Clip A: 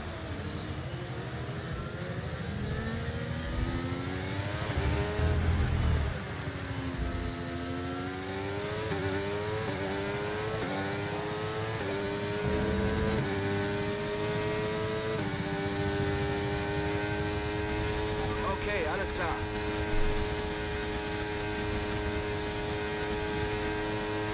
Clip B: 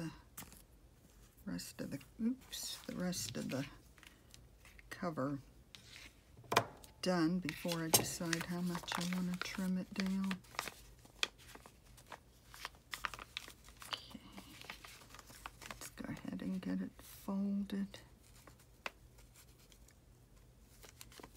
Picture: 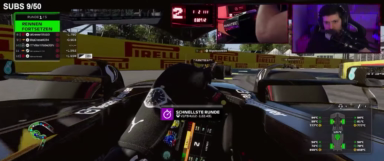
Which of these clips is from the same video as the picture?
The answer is A